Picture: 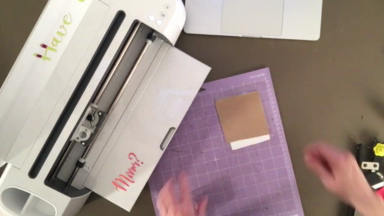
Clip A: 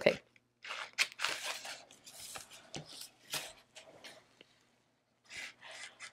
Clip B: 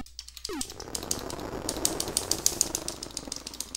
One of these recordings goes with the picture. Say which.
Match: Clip A